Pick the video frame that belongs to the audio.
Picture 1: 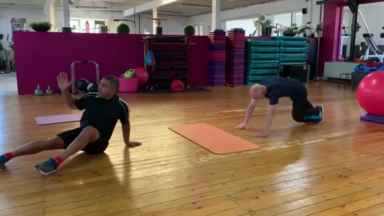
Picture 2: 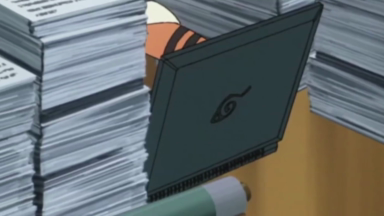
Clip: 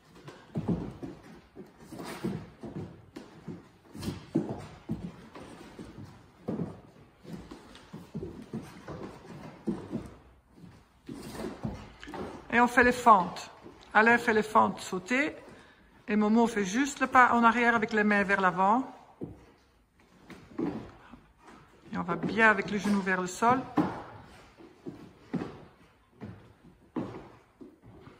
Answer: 1